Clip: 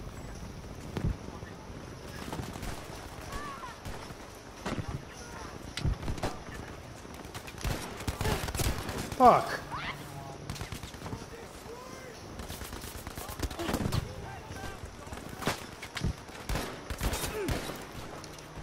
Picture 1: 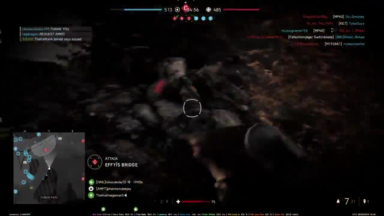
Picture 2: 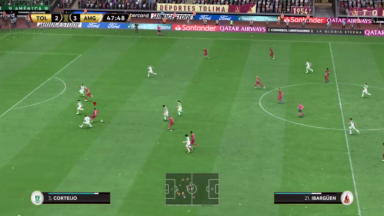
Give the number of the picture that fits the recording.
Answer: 1